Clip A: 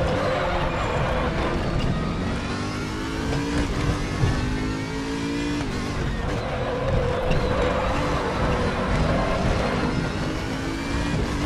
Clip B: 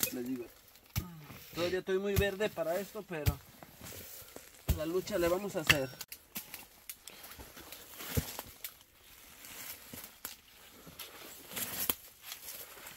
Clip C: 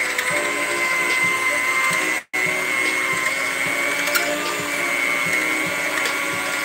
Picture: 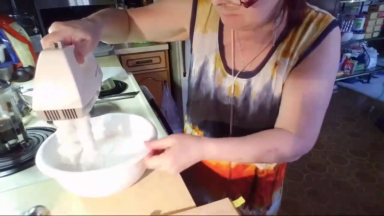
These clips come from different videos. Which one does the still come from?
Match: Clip C